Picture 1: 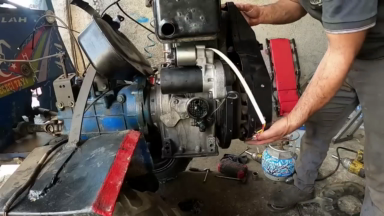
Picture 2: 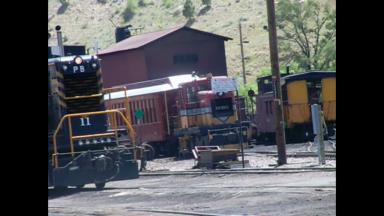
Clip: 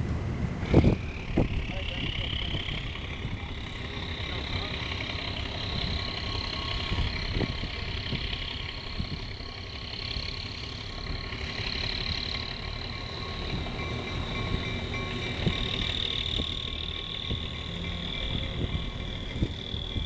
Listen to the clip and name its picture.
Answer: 2